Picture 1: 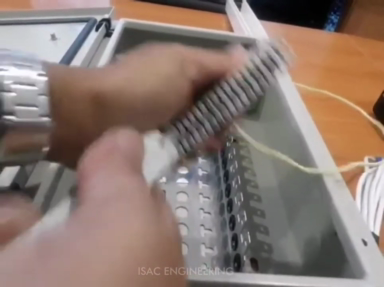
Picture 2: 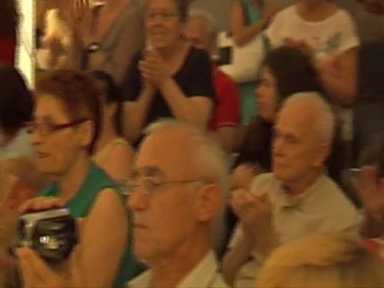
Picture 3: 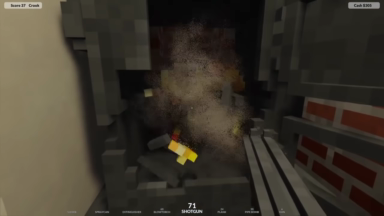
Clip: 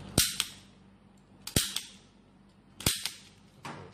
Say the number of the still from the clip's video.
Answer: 1